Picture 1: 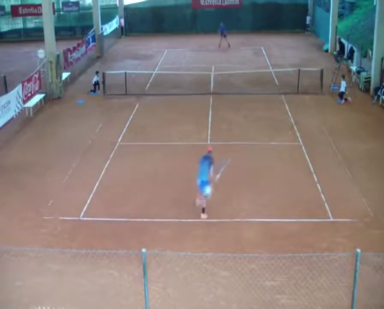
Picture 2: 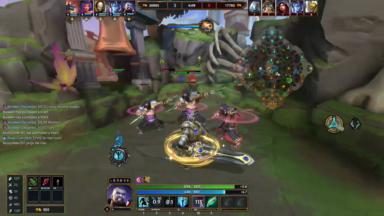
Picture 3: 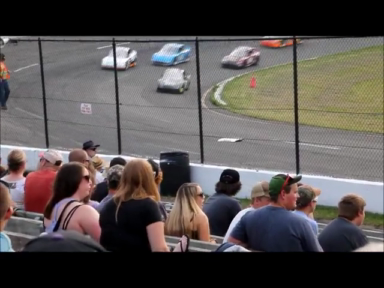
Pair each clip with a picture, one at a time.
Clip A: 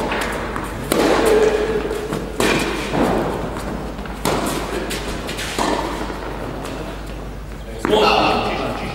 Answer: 1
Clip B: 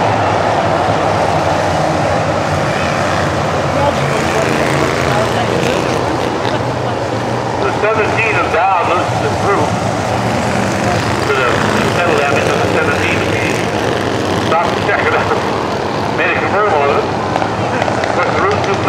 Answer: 3